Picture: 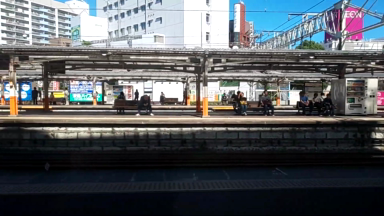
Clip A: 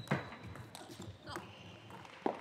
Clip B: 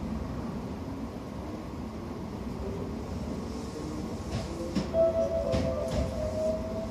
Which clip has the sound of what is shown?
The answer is B